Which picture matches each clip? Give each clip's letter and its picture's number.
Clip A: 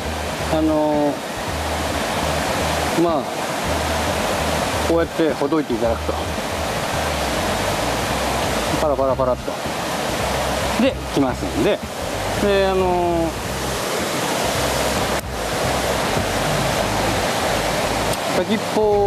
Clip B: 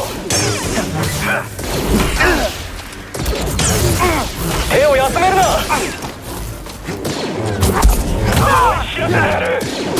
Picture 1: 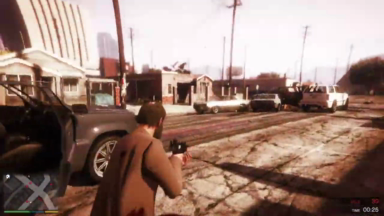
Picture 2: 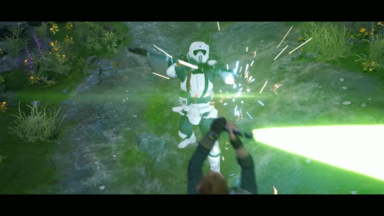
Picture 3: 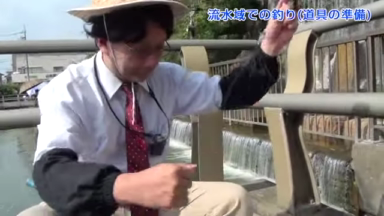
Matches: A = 3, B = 2